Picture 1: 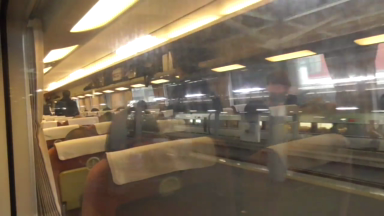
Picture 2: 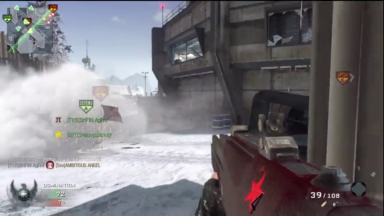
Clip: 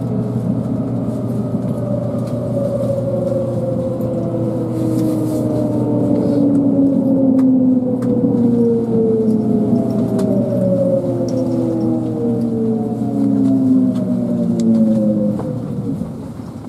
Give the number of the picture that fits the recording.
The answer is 1